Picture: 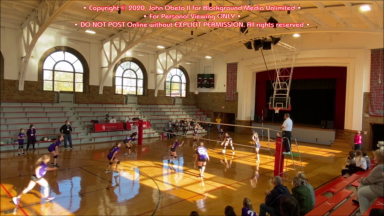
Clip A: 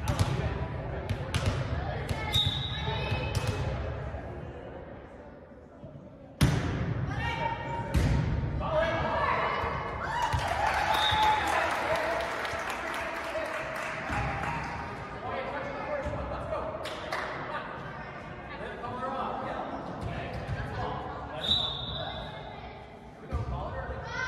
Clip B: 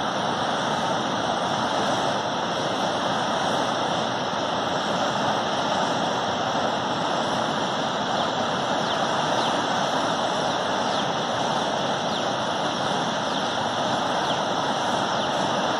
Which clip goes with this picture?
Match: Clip A